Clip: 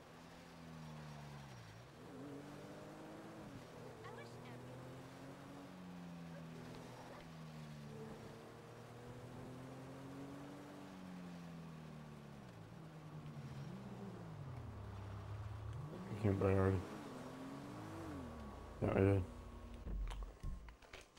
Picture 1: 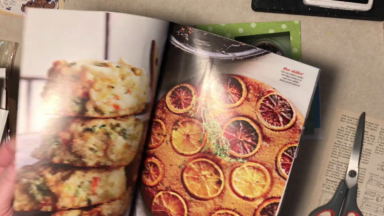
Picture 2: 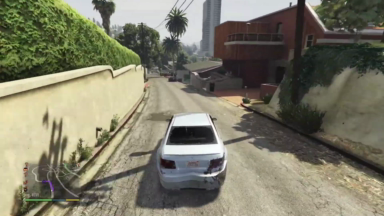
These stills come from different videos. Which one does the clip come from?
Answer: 2